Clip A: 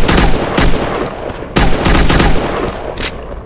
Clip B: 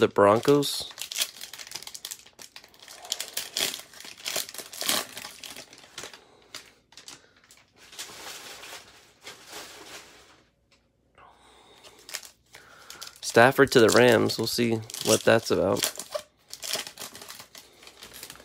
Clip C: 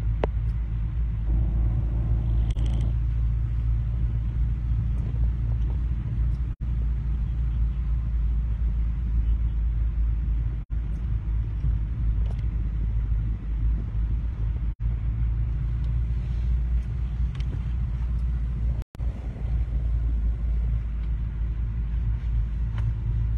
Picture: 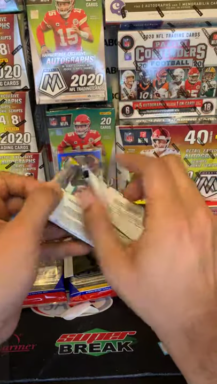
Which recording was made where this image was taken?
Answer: B